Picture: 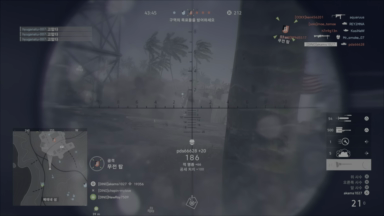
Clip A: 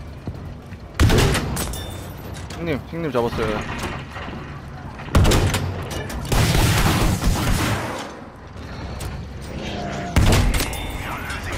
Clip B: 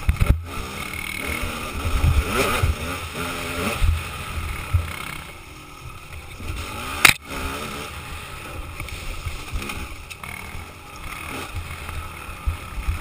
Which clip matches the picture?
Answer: A